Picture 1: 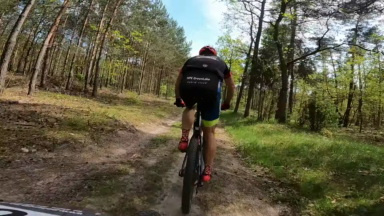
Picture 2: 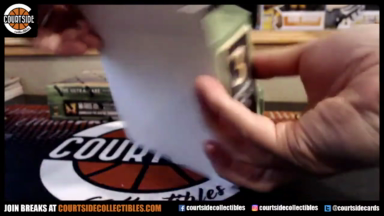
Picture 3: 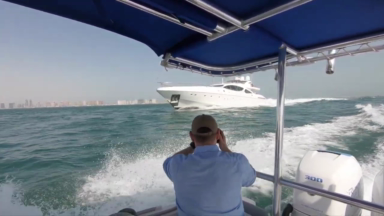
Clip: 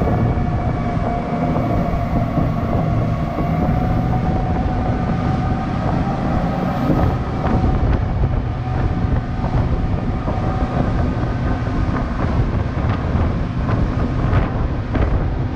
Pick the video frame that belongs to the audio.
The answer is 3